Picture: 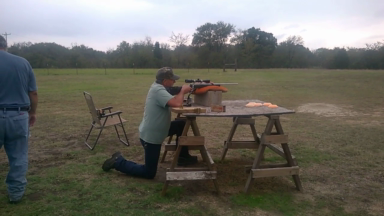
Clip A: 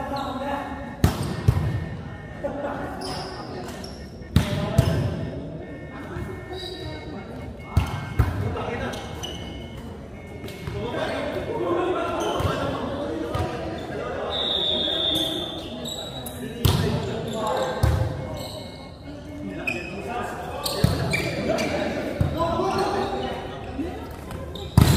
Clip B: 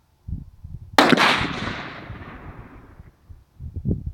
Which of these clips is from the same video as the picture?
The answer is B